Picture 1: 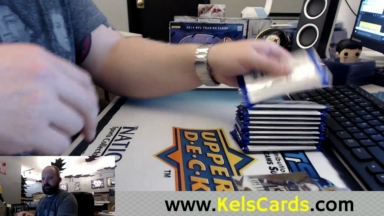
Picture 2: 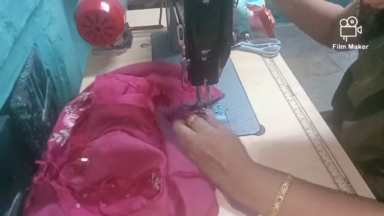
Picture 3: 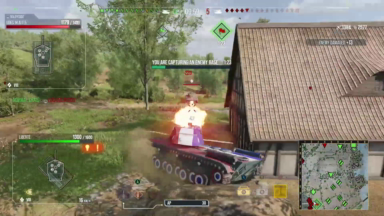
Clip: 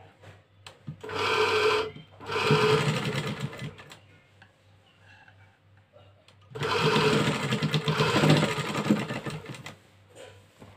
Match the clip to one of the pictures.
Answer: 2